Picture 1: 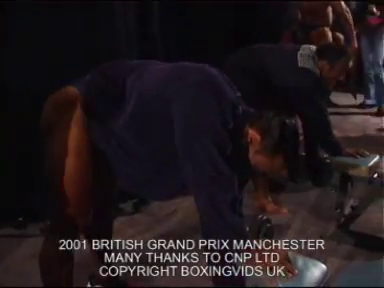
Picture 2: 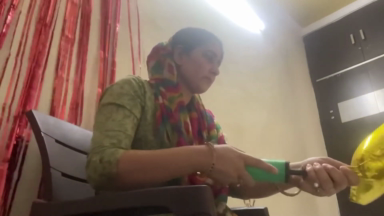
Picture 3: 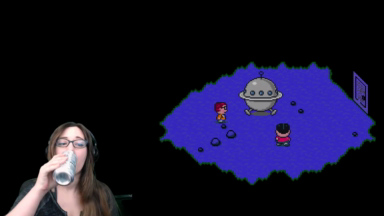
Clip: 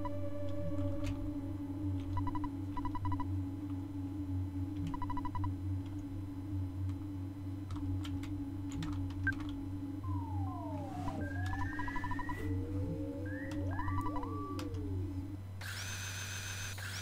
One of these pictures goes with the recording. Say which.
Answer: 3